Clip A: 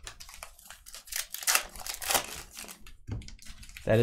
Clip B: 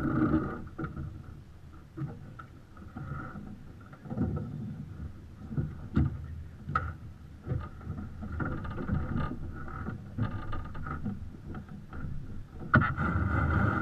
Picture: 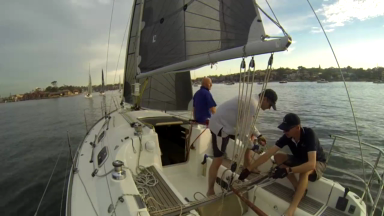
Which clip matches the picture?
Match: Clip B